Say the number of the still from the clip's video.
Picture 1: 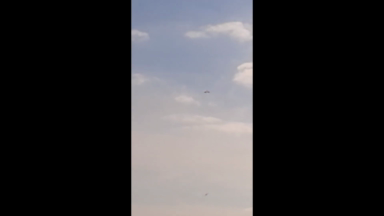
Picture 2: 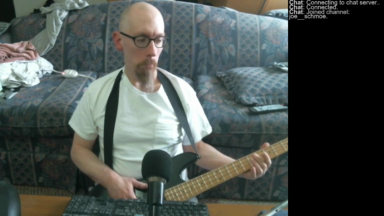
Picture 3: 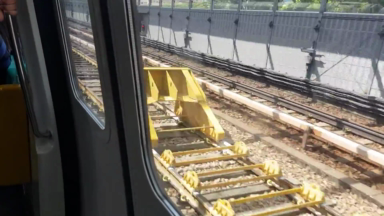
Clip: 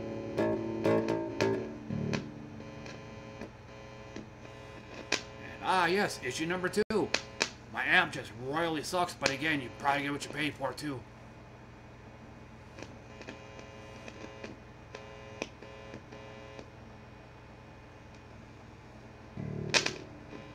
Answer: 2